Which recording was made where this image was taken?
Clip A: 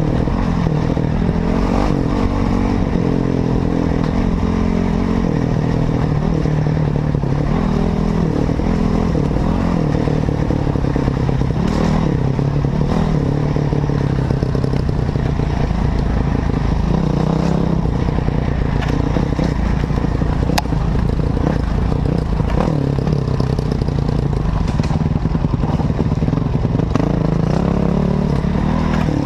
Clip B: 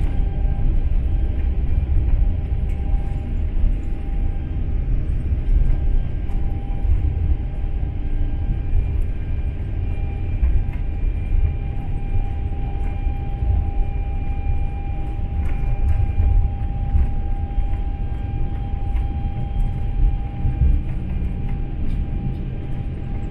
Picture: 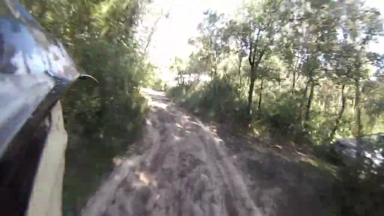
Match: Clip A